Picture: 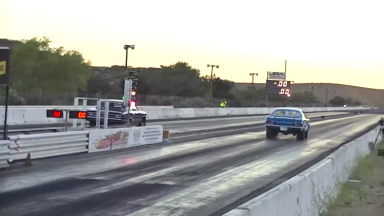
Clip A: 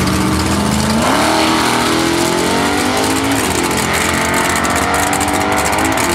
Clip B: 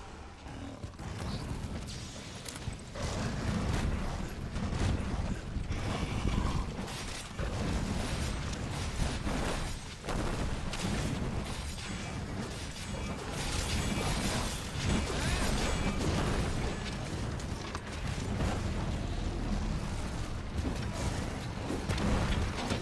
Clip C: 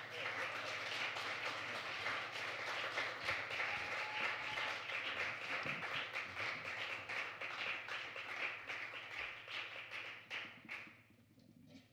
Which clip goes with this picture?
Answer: A